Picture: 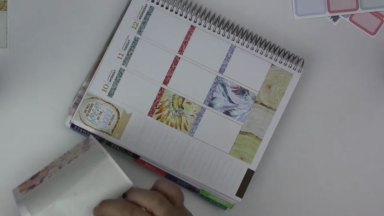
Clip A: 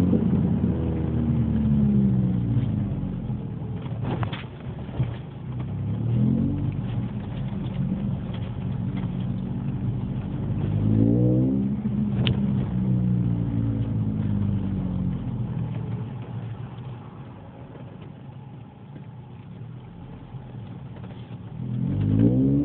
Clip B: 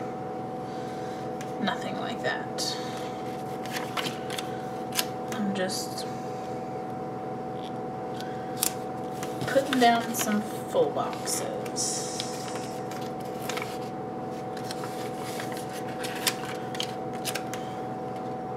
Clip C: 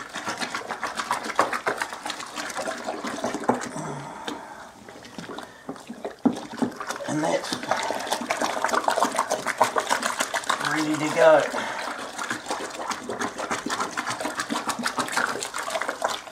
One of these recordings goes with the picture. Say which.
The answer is B